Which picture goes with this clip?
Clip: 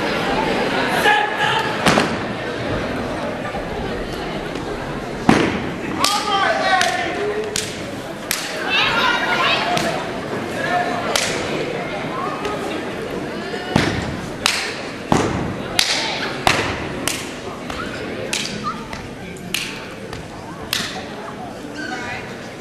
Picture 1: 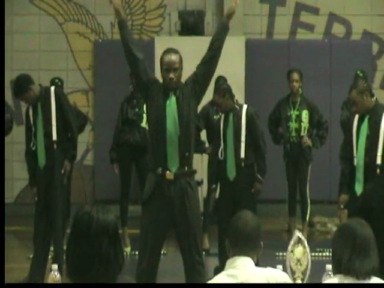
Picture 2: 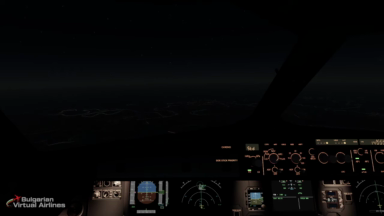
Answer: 1